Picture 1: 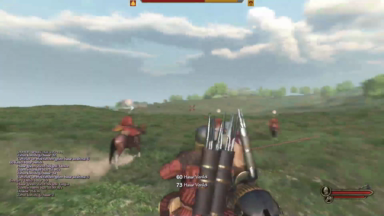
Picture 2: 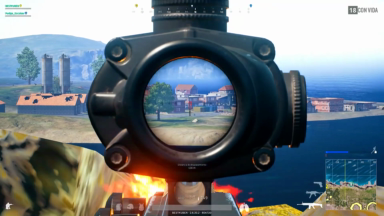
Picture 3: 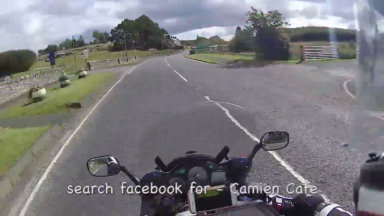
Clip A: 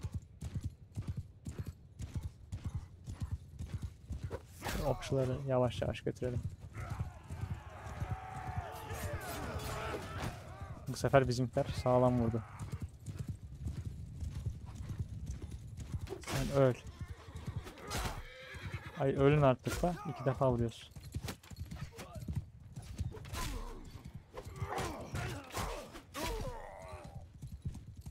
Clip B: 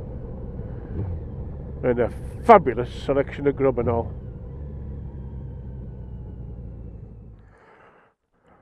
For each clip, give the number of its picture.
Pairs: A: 1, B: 3